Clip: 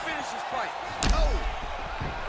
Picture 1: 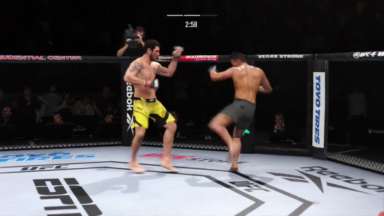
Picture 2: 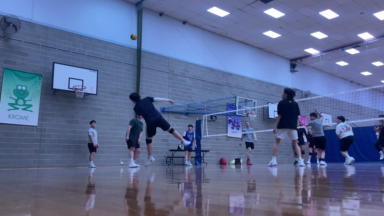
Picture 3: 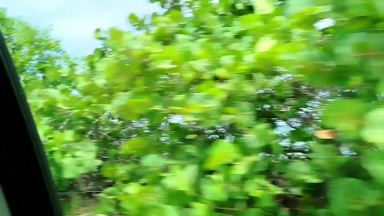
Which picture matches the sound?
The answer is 1